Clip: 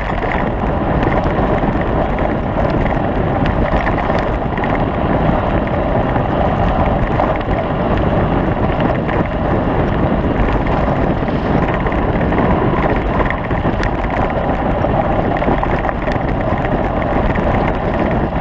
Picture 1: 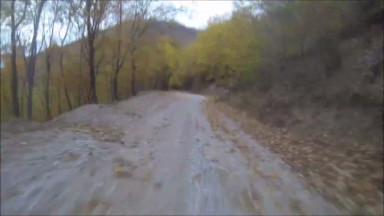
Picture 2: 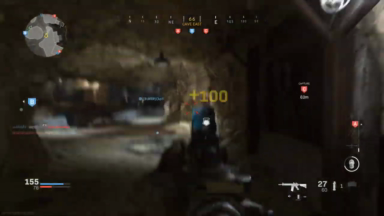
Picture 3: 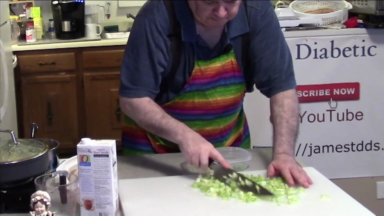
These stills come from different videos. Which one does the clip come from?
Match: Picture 1